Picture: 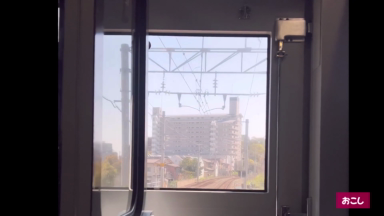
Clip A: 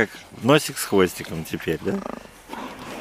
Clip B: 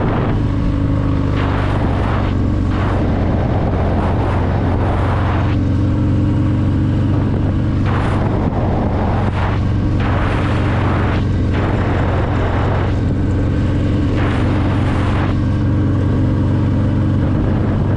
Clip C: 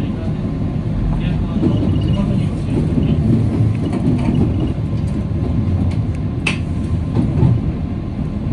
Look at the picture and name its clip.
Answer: C